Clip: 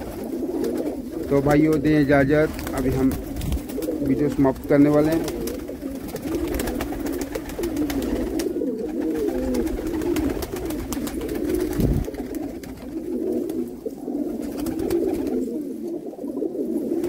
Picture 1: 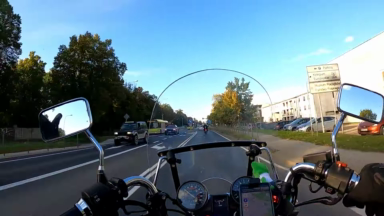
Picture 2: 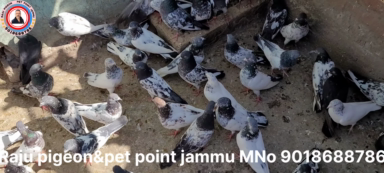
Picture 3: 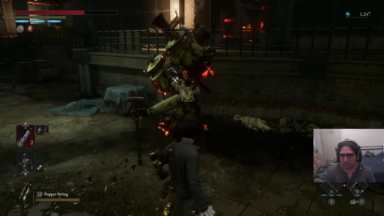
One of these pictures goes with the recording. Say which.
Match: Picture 2